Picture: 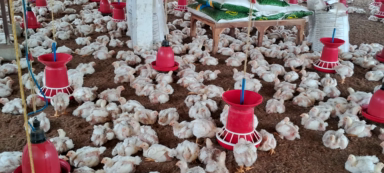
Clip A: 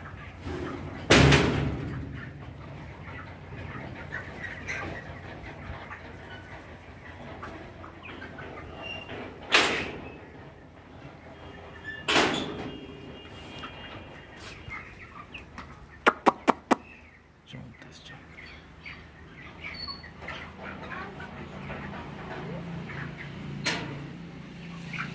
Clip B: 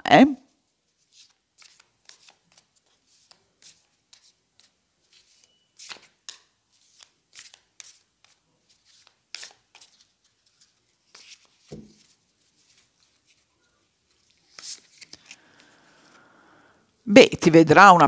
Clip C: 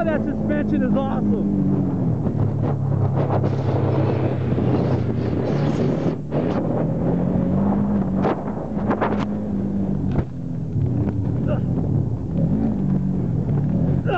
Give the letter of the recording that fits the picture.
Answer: A